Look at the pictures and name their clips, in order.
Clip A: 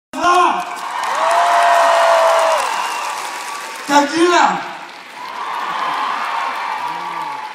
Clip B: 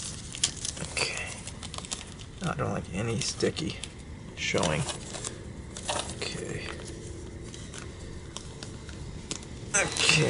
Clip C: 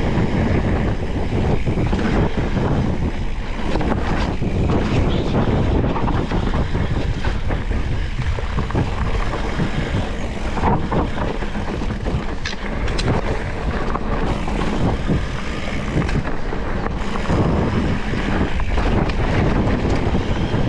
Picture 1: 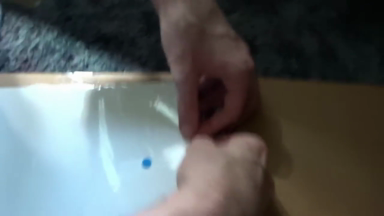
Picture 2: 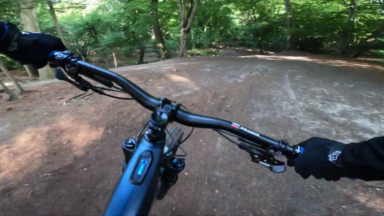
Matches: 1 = B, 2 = C